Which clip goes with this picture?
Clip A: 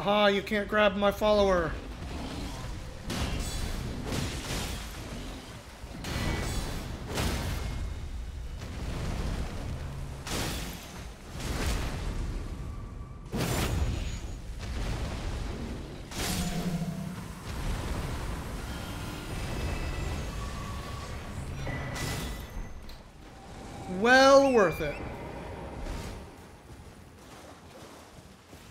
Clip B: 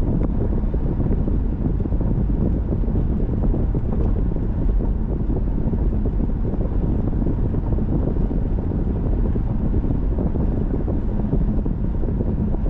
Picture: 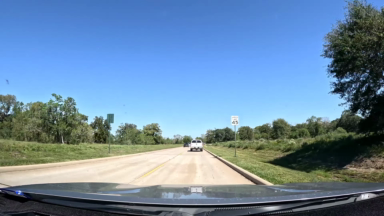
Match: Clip B